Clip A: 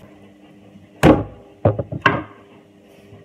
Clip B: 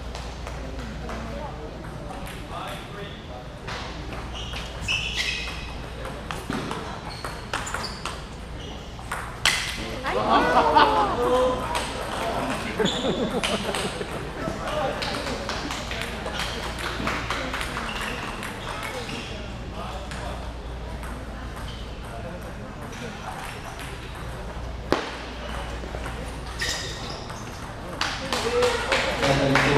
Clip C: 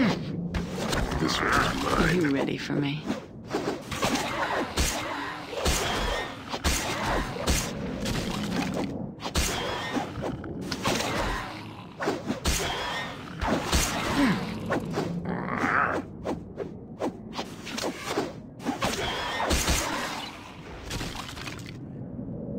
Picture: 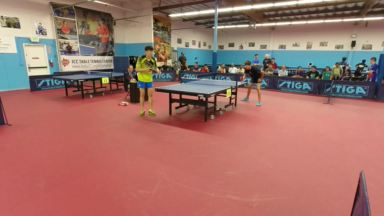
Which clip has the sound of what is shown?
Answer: B